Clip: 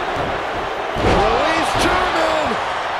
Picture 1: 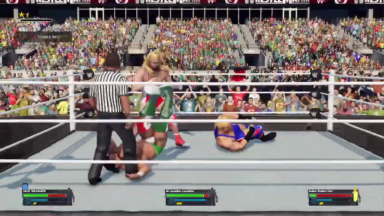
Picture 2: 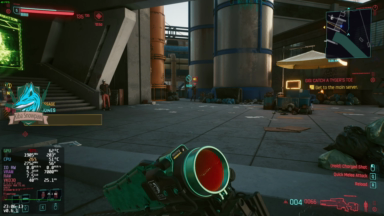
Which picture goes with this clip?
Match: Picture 1